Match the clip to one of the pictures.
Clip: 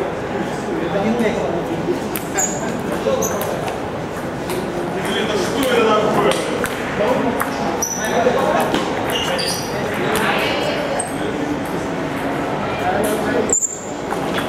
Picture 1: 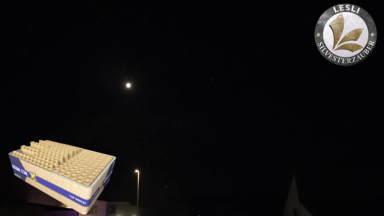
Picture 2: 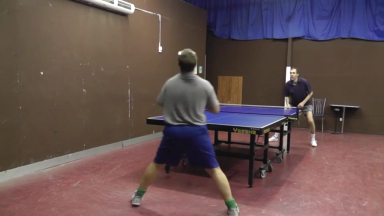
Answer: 2